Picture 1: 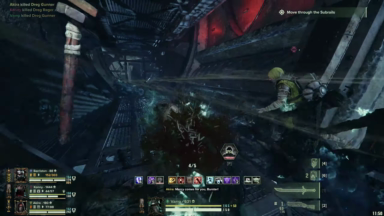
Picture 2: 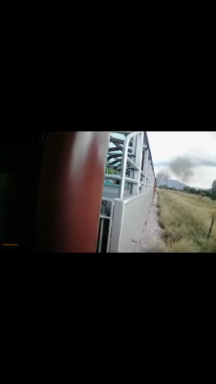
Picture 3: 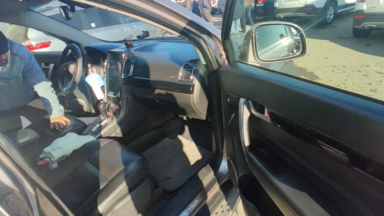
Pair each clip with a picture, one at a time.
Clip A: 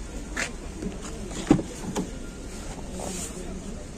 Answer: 3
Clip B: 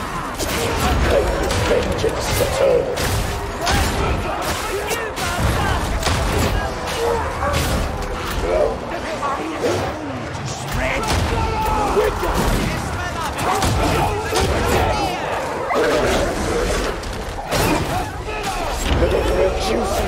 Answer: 1